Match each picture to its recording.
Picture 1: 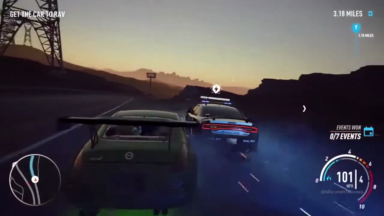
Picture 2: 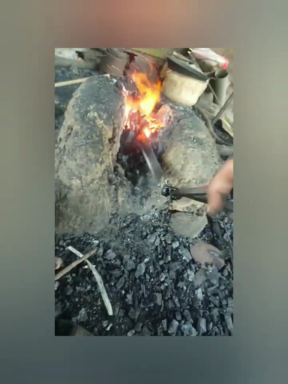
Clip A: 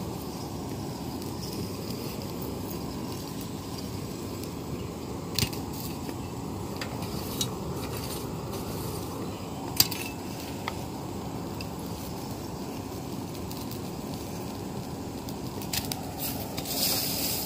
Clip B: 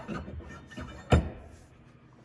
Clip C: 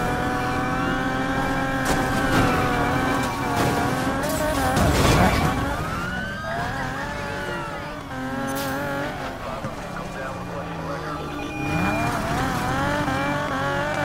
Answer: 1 C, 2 A